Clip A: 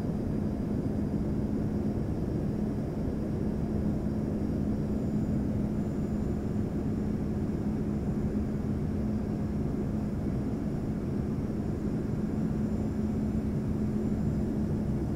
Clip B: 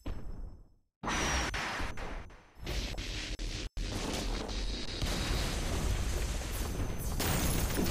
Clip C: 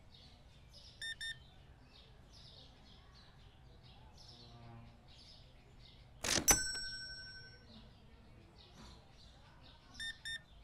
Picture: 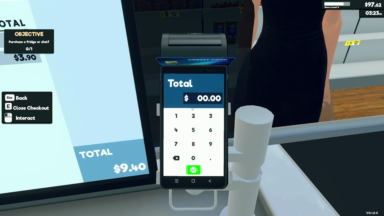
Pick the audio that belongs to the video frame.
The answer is C